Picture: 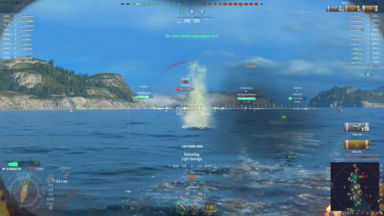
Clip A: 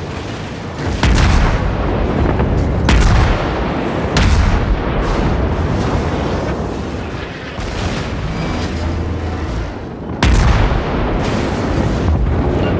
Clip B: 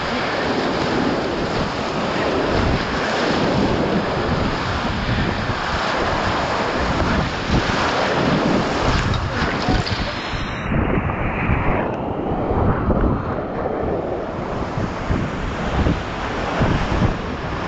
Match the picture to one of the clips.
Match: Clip A